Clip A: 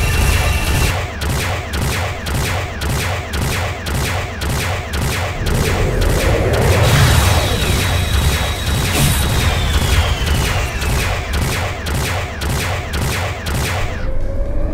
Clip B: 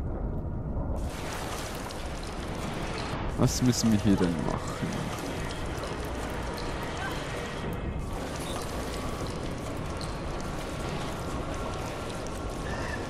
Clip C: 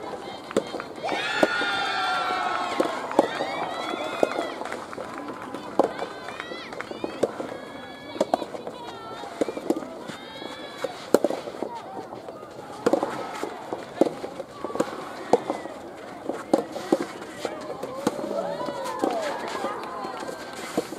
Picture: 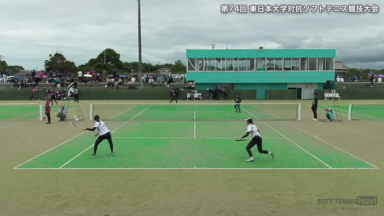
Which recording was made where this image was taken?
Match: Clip C